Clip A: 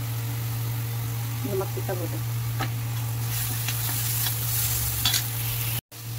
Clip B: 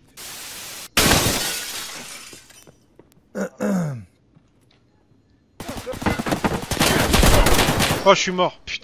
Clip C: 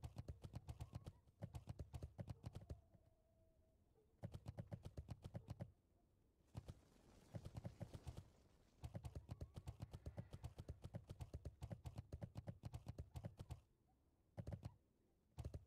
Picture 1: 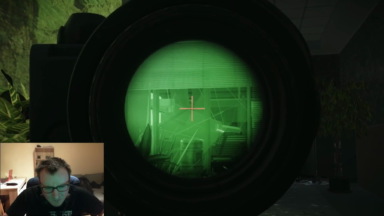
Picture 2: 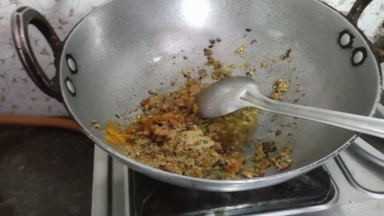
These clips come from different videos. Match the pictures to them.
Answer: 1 B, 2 A